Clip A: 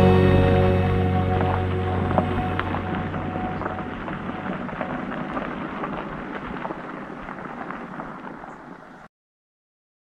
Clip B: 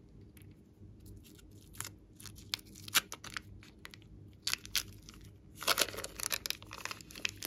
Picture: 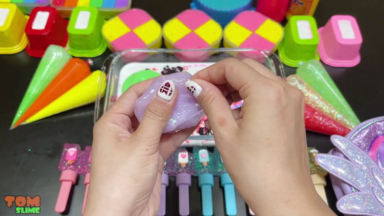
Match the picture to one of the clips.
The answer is B